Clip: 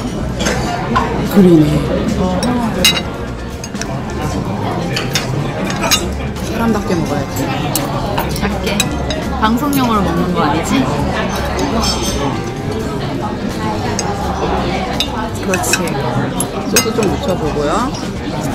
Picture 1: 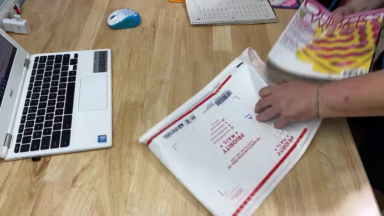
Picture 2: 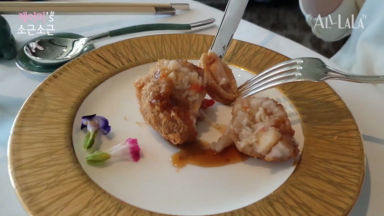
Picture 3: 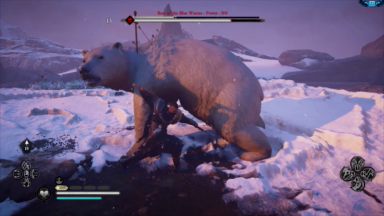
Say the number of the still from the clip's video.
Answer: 2